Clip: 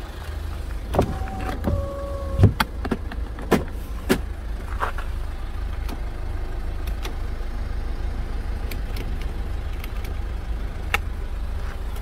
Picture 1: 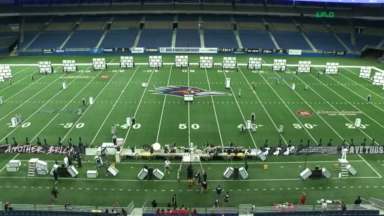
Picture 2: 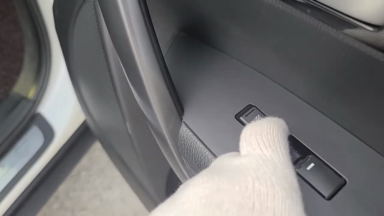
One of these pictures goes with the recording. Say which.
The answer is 2